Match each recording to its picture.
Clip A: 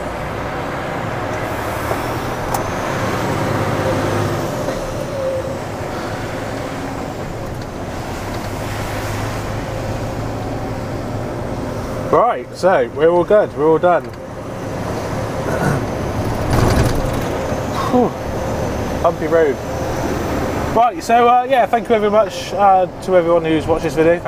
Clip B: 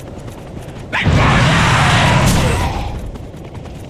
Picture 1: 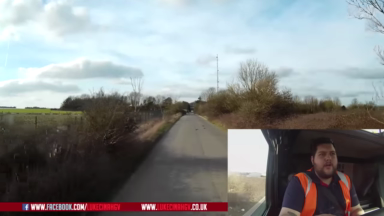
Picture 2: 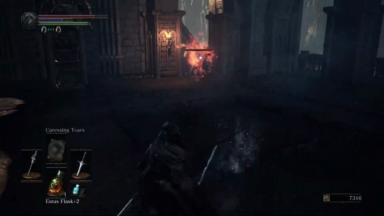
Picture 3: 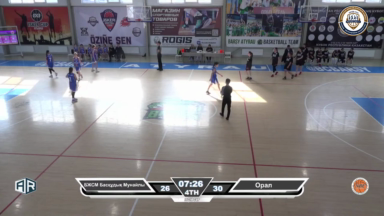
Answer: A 1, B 2